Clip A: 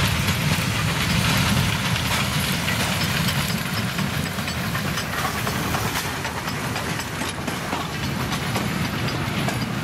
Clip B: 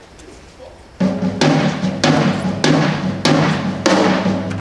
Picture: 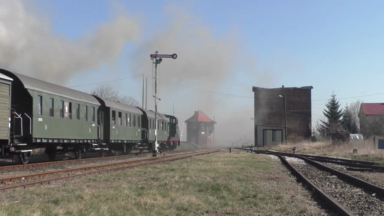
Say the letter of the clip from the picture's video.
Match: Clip A